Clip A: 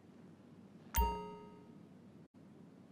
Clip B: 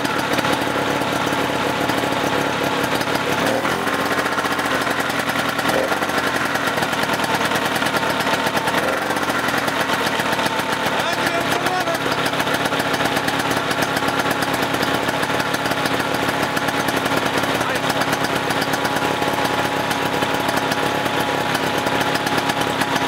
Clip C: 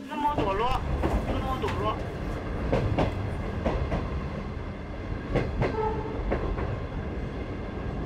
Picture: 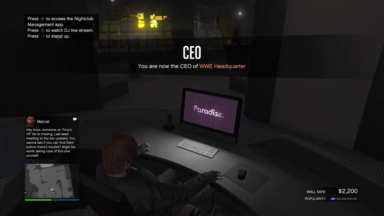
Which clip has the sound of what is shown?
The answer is A